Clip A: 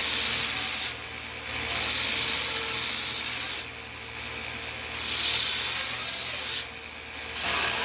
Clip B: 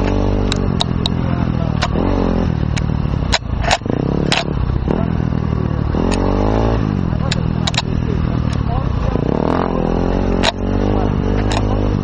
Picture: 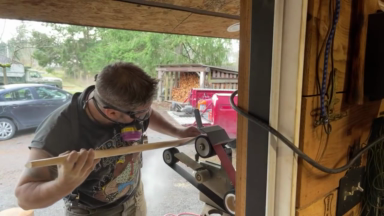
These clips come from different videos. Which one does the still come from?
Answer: A